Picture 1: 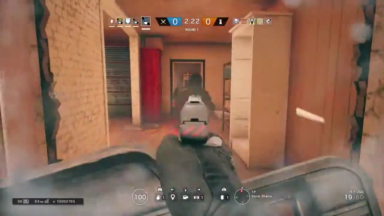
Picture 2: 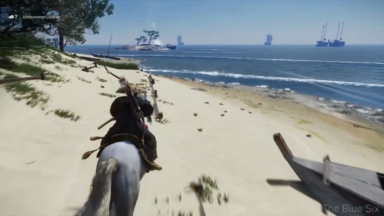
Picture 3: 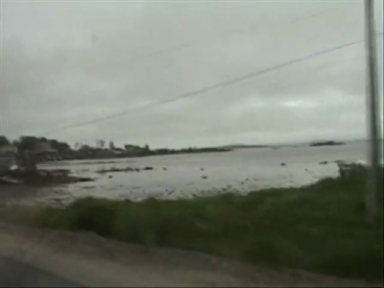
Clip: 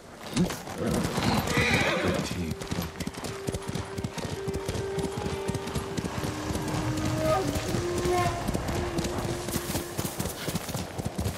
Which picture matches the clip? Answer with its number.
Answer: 2